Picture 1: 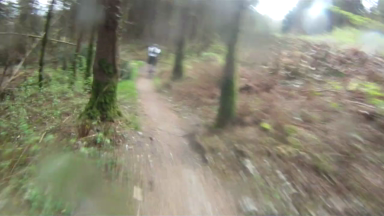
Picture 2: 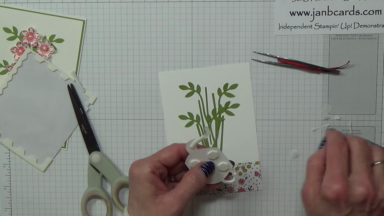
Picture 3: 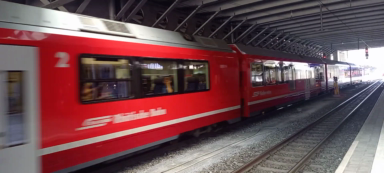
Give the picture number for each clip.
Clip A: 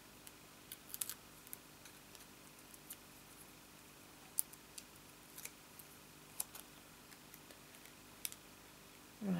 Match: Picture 2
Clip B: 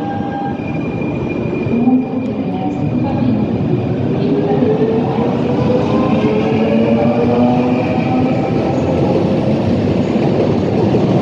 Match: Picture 3